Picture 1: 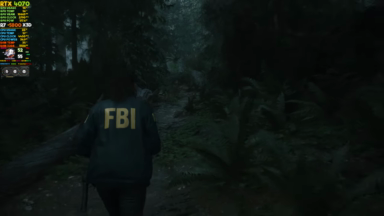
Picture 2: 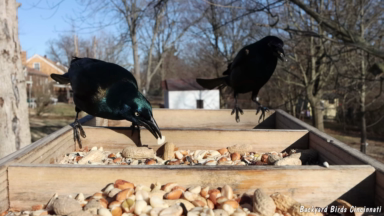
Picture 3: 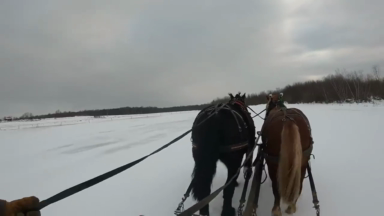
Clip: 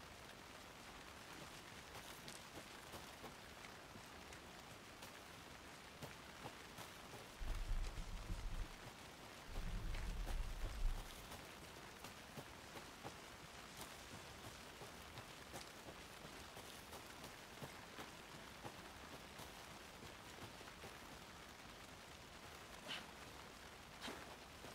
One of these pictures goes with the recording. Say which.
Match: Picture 1